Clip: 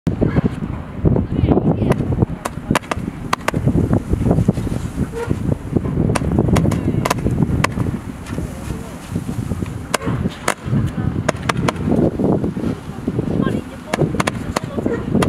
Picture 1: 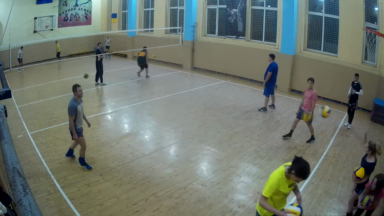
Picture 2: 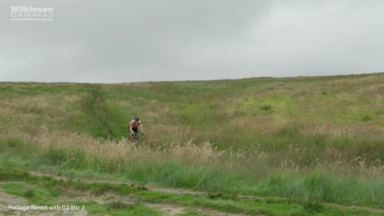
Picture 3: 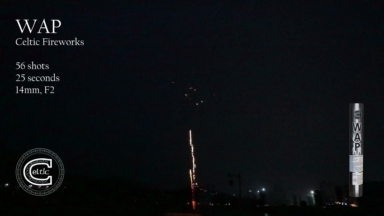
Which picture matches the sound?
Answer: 3